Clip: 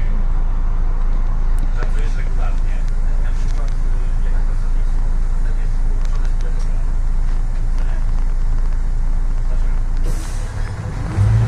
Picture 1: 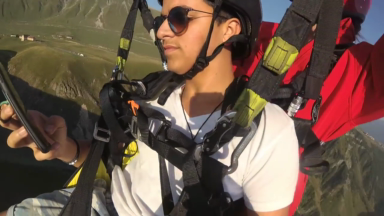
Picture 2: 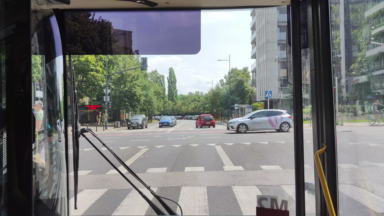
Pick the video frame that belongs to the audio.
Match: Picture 2